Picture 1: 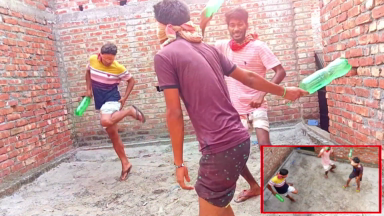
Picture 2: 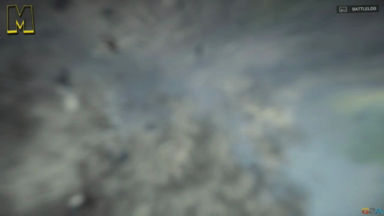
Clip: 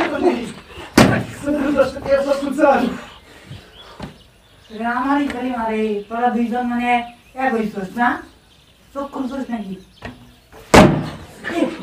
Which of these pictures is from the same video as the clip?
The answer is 1